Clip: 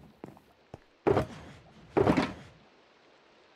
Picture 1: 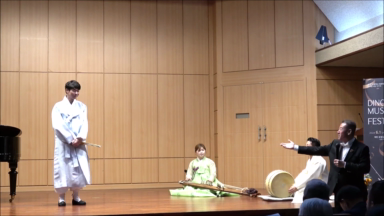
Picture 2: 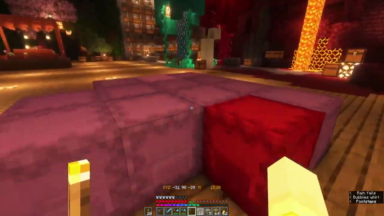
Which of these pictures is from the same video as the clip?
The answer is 2